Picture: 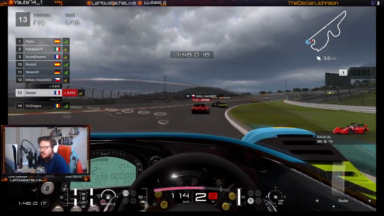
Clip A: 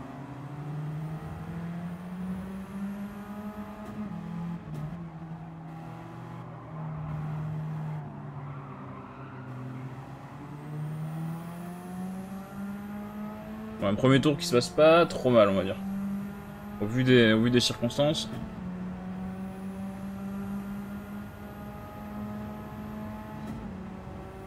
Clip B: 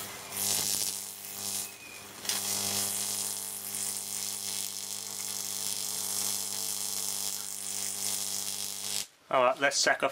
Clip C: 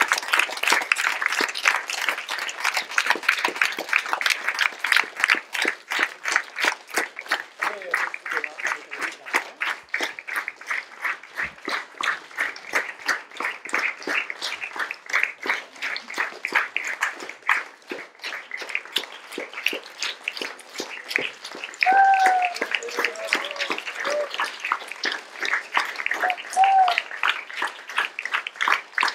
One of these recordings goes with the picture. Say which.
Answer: A